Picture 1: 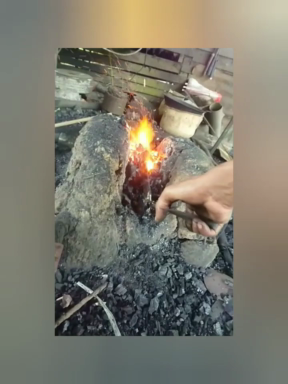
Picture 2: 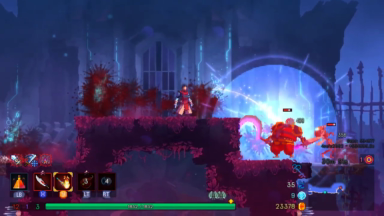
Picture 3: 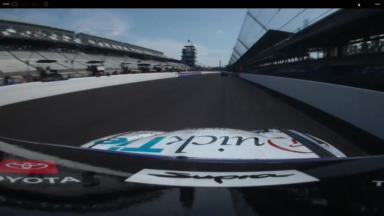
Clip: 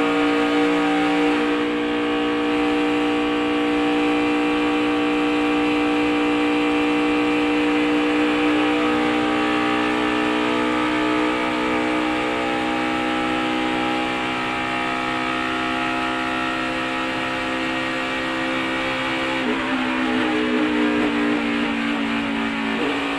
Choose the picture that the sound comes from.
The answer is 3